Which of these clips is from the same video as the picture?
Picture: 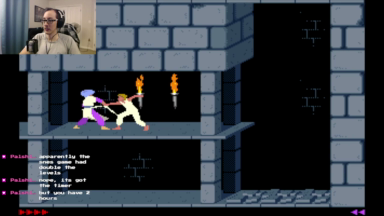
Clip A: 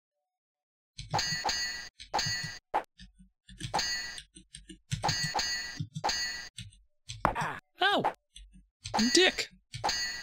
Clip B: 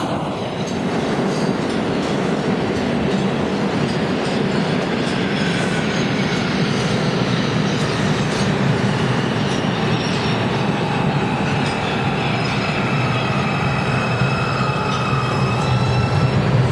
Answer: A